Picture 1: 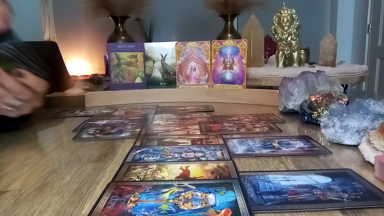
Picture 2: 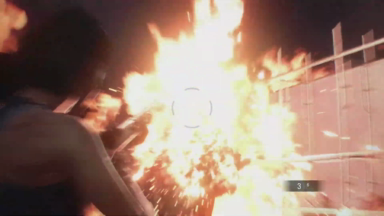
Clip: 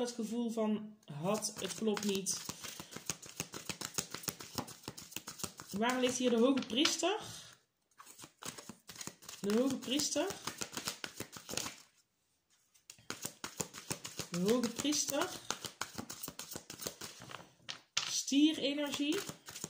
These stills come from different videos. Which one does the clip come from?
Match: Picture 1